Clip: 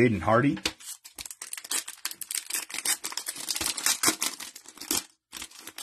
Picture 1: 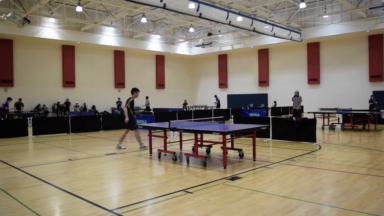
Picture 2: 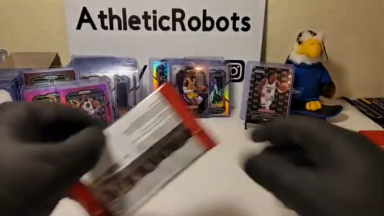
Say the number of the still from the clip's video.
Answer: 2